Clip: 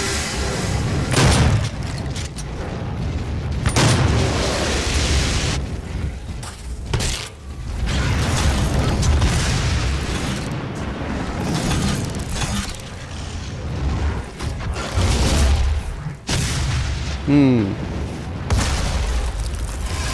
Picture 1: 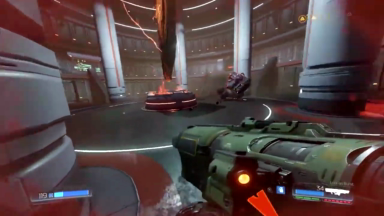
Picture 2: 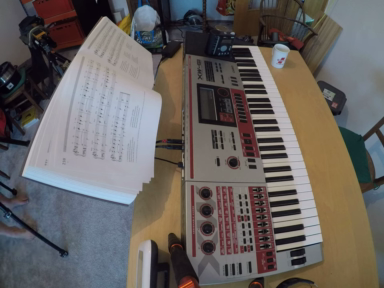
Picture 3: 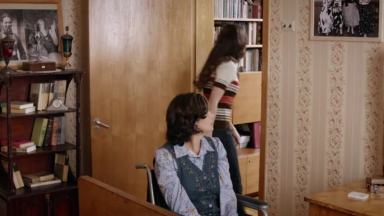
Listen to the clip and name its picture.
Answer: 1